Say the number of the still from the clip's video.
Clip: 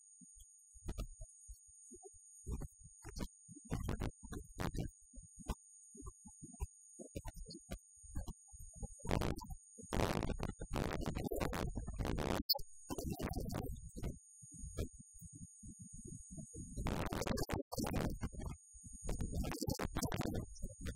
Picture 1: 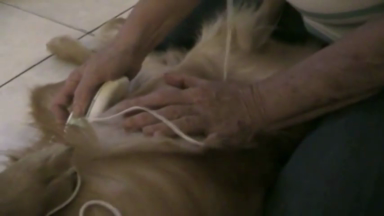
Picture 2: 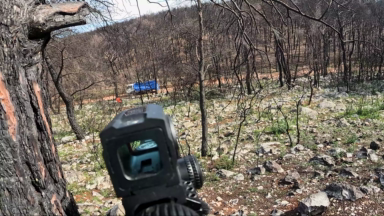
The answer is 1